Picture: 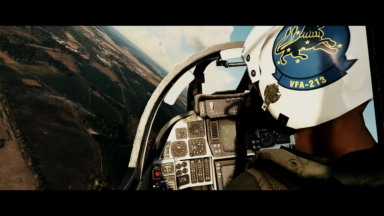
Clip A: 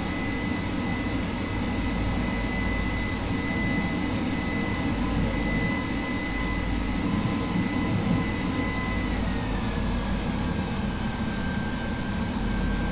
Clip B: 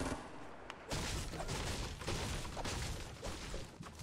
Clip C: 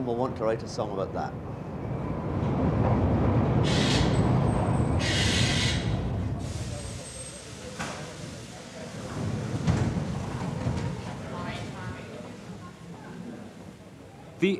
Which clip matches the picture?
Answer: A